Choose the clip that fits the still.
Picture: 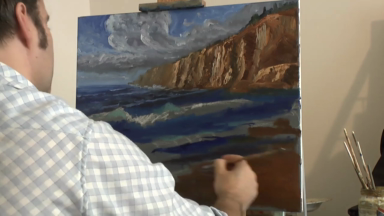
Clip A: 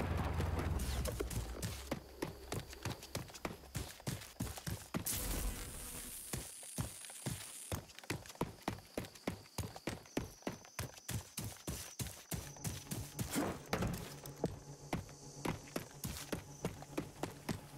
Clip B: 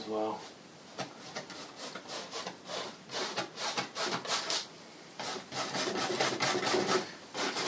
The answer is B